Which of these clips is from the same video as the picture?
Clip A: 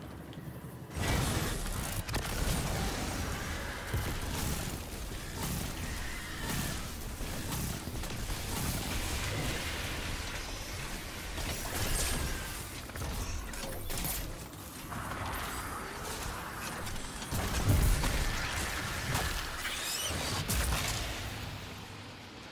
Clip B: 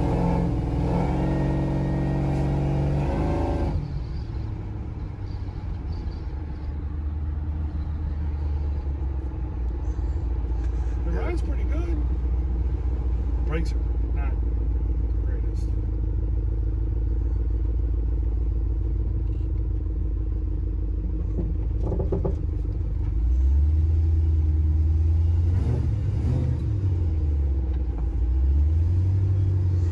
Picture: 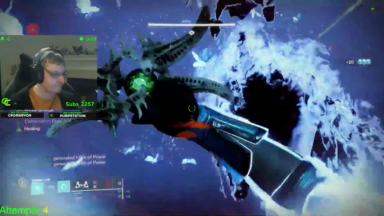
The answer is A